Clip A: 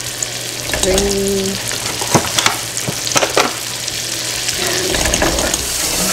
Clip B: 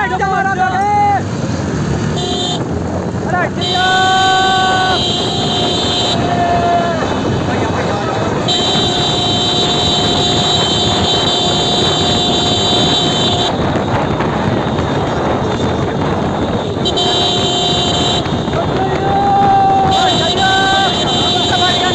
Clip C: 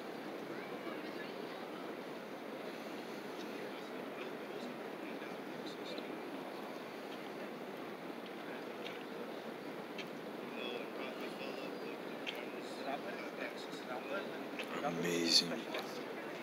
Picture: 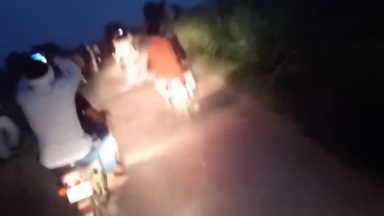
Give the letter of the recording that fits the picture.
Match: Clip B